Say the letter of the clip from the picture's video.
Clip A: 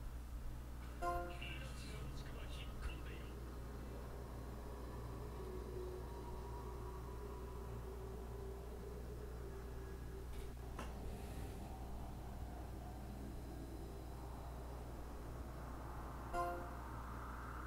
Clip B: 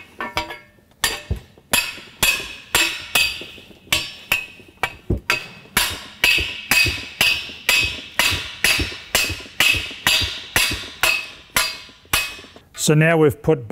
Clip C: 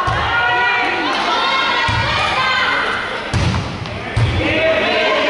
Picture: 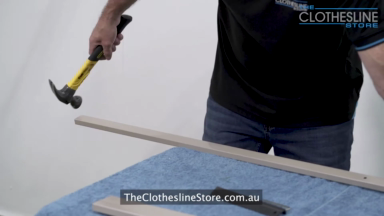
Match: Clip B